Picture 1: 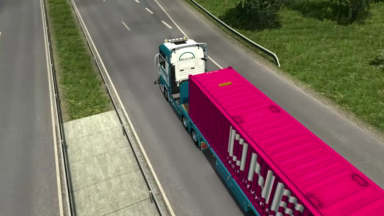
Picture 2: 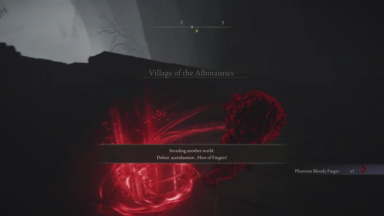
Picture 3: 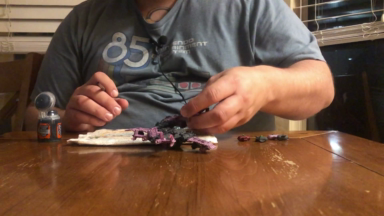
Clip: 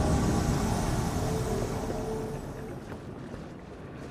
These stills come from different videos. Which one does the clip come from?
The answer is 2